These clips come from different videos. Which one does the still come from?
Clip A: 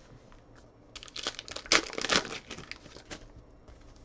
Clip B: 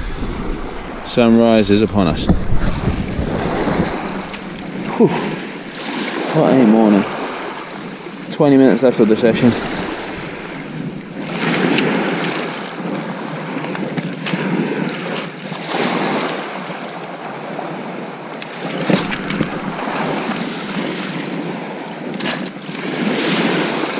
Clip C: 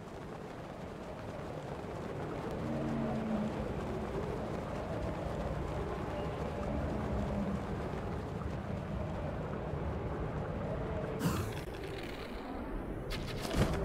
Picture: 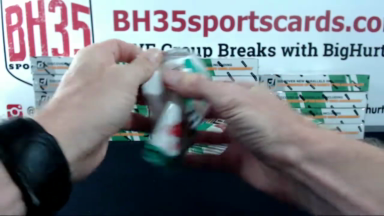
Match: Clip A